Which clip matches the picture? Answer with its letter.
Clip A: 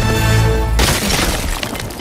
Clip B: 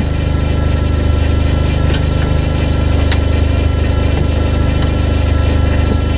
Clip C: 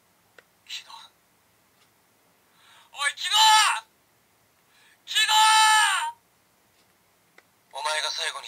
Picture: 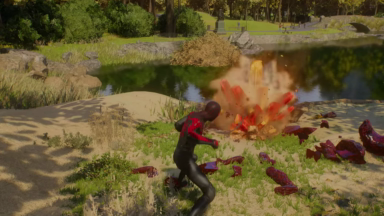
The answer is A